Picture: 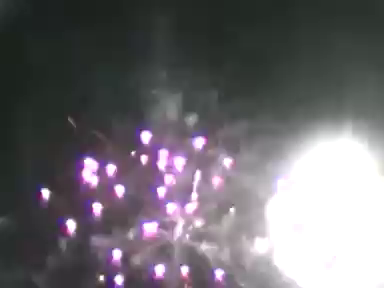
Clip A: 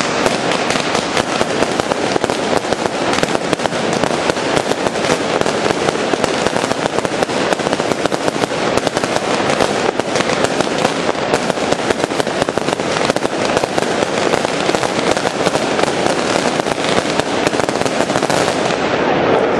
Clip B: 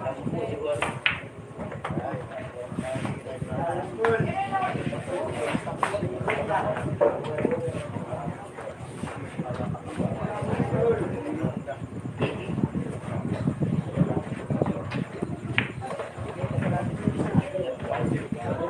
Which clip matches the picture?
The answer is A